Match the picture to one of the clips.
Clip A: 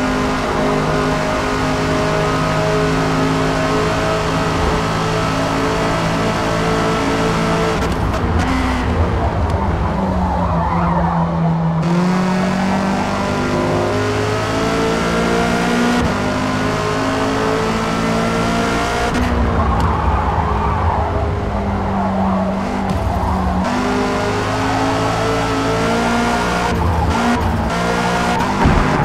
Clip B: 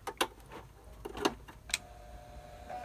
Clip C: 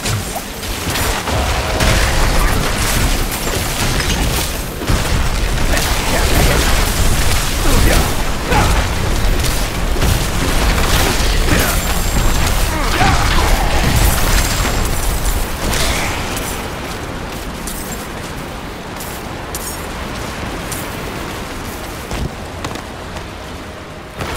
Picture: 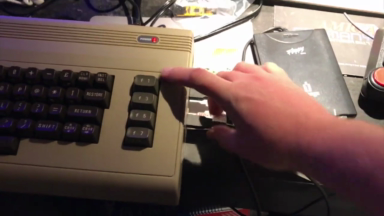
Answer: B